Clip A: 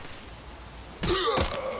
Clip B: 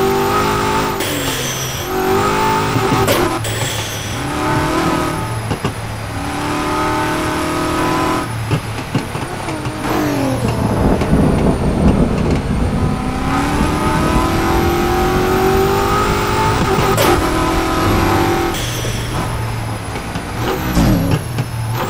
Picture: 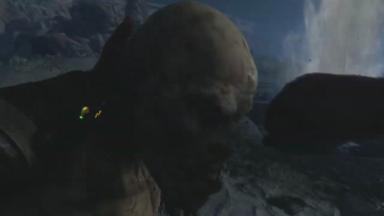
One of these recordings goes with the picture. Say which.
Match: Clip A